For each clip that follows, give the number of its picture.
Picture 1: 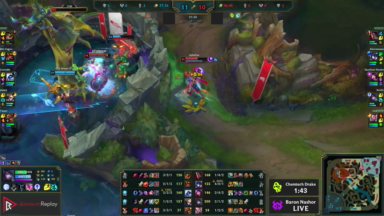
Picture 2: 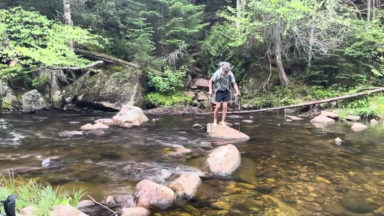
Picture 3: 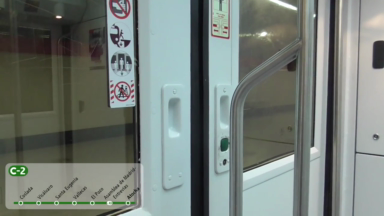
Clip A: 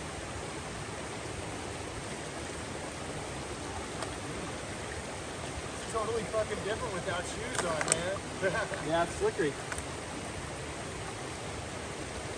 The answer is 2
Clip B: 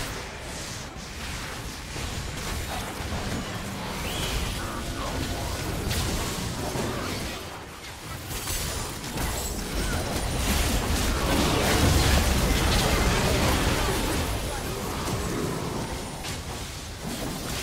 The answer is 1